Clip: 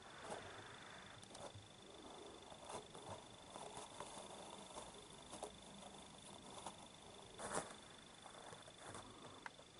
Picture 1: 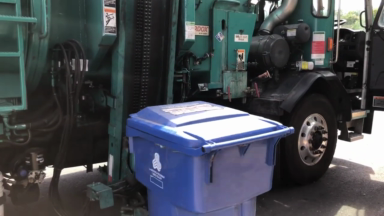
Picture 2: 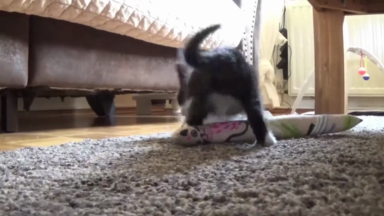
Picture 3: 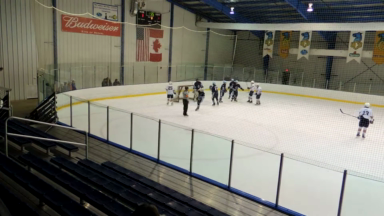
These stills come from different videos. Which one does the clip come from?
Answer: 2